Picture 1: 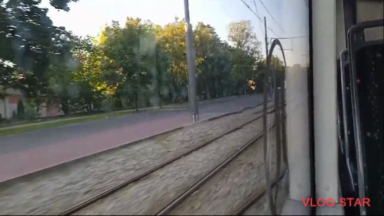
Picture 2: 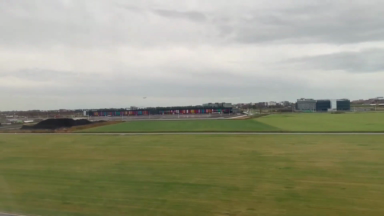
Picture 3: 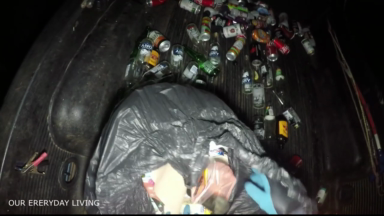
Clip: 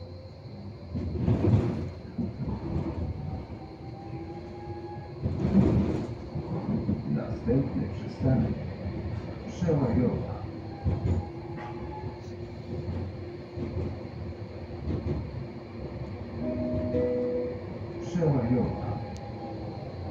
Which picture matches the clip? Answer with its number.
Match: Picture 1